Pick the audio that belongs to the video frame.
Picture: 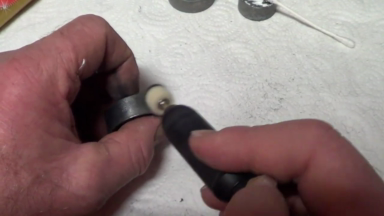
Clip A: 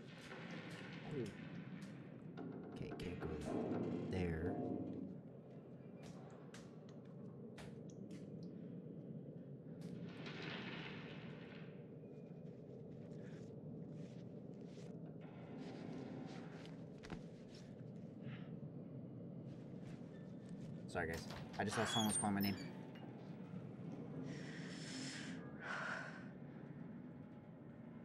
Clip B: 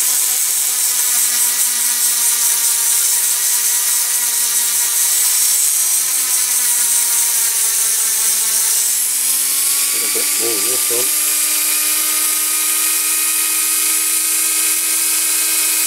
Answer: B